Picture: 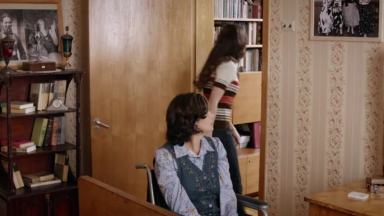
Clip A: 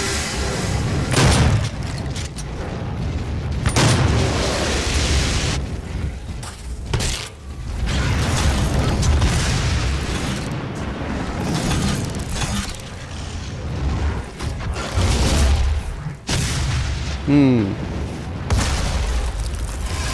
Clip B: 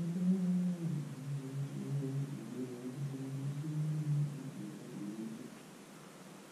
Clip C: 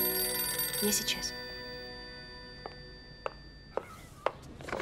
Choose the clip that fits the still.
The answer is C